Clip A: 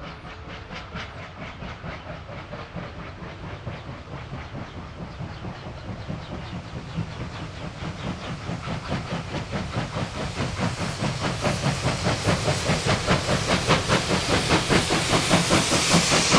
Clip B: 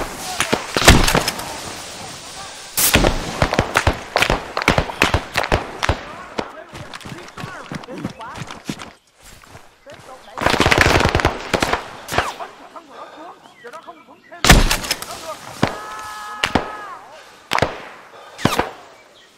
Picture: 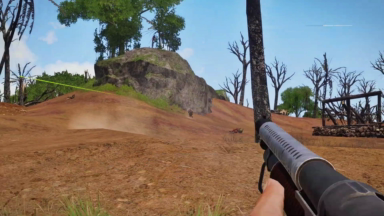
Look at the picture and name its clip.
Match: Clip B